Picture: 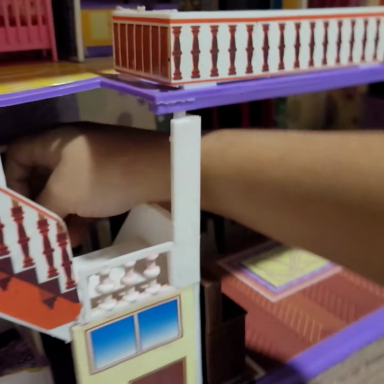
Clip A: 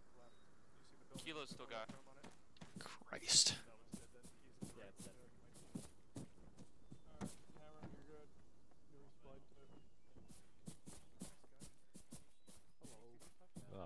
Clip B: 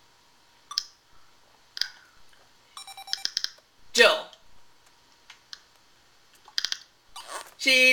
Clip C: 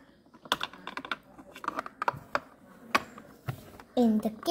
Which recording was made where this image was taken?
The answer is C